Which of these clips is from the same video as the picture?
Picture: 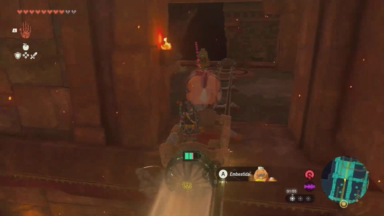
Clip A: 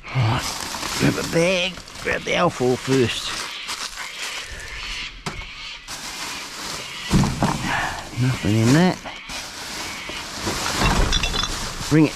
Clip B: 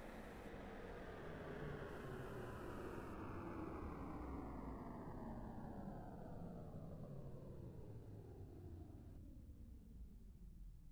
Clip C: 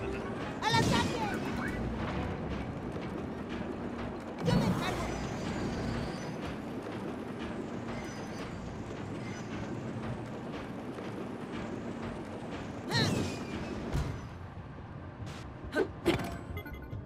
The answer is C